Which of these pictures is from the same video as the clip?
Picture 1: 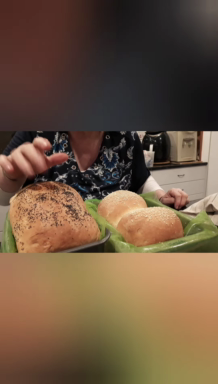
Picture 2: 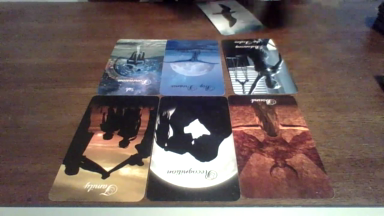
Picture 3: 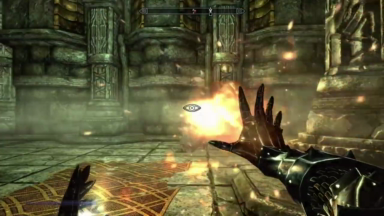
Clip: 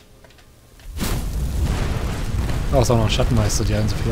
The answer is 3